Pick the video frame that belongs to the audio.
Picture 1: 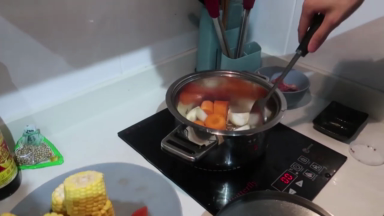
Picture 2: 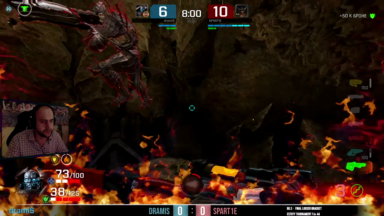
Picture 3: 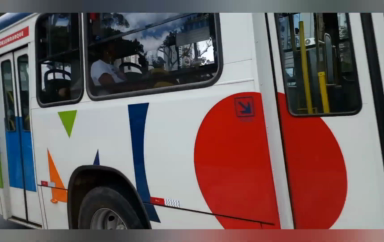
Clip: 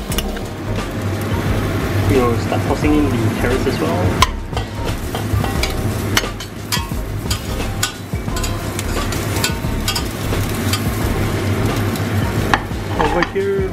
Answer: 1